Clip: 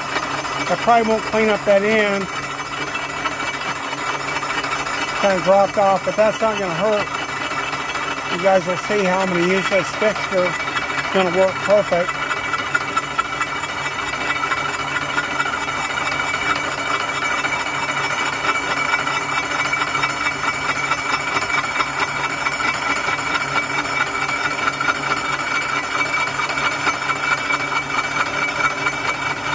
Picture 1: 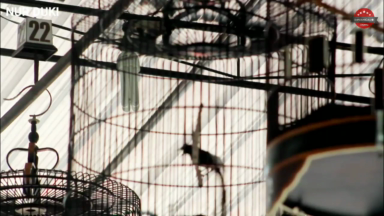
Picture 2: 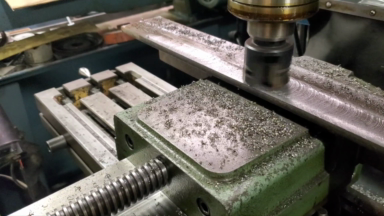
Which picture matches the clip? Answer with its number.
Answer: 2